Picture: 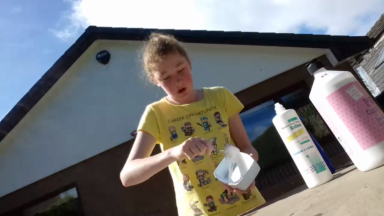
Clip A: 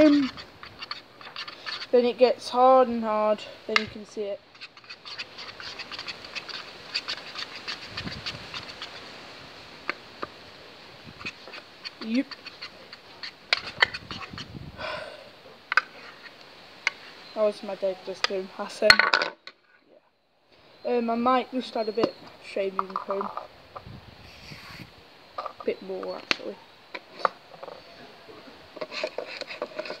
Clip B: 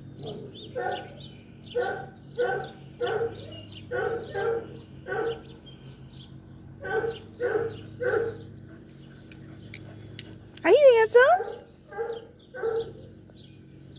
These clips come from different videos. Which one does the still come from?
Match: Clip A